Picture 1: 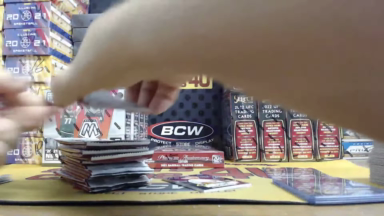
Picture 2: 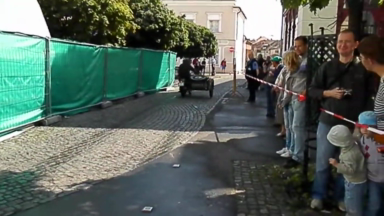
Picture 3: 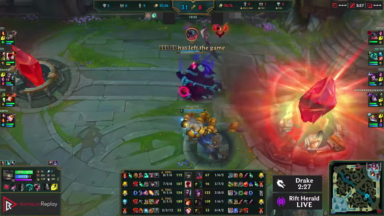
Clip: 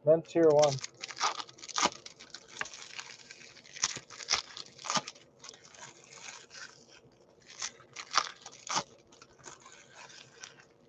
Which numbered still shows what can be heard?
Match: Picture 1